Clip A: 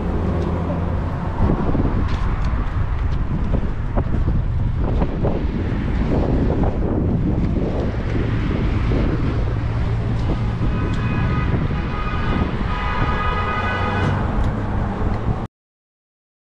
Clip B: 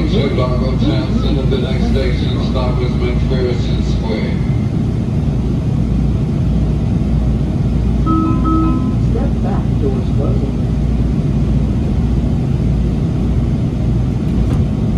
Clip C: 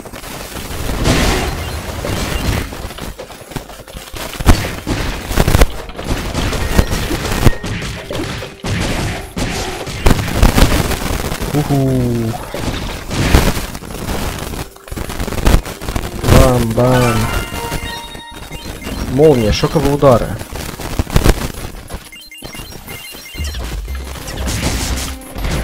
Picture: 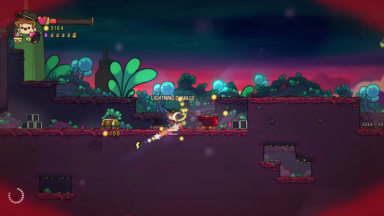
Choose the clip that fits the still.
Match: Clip C